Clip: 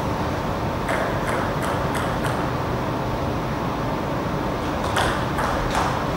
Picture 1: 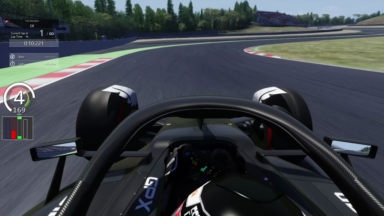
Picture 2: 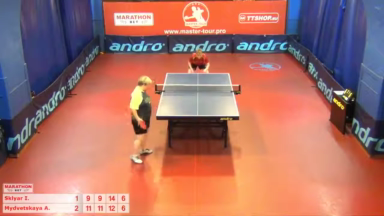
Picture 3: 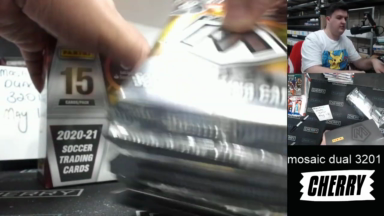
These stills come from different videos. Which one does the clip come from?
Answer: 2